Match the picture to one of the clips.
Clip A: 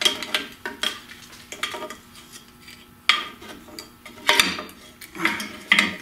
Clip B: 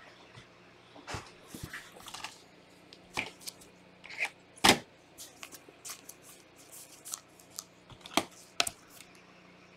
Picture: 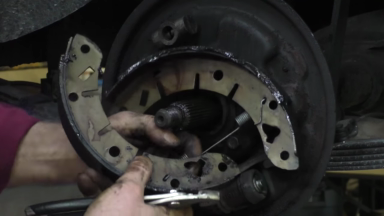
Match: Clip A